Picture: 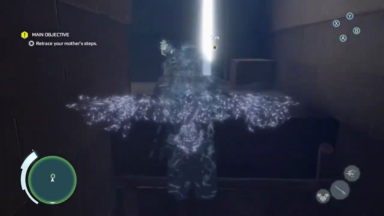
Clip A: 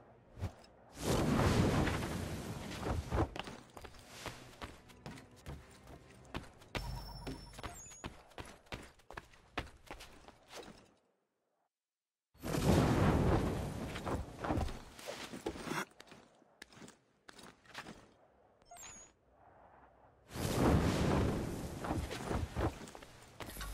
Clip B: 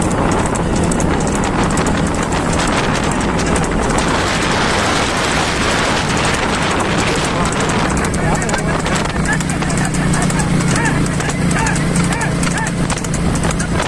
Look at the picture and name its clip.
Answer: A